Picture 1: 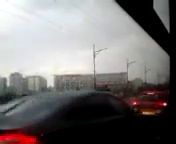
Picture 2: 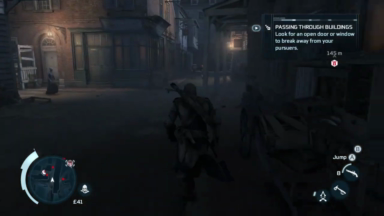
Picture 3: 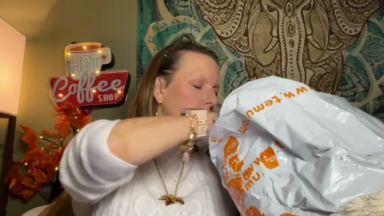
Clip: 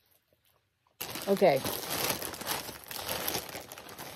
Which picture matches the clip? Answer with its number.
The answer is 3